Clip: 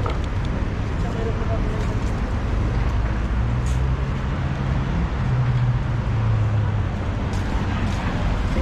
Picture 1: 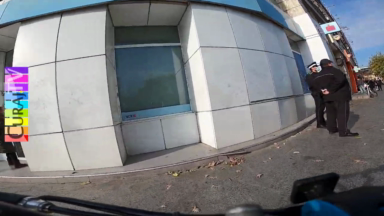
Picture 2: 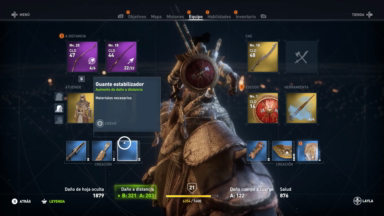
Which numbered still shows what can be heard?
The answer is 1